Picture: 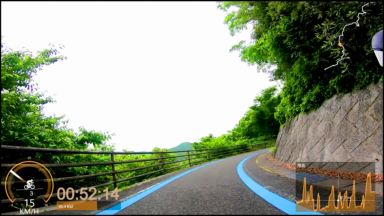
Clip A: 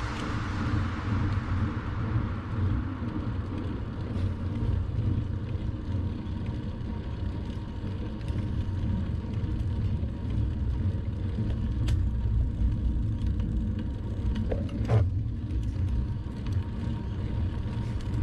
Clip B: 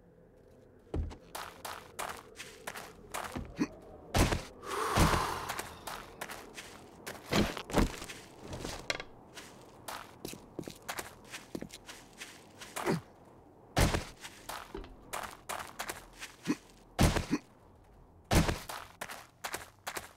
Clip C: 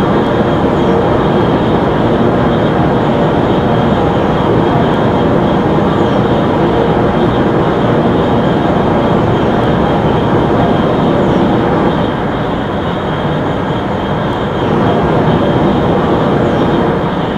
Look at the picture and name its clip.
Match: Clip A